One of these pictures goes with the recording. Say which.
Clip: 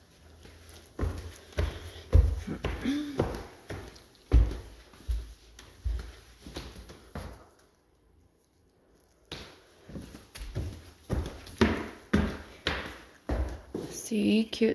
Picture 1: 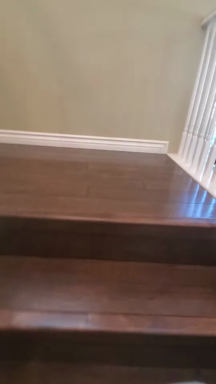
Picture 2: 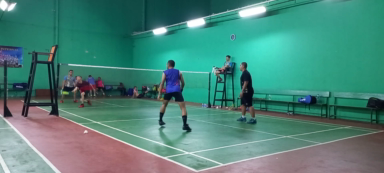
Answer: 1